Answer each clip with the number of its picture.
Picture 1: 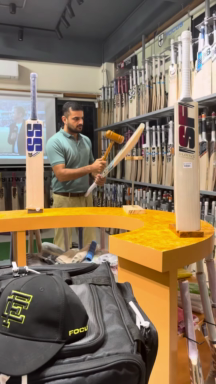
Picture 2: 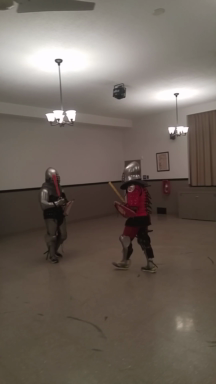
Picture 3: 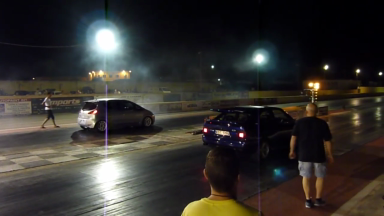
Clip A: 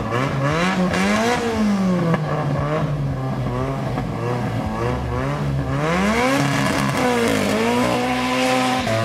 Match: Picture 3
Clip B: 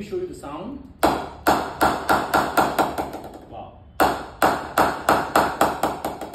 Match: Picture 1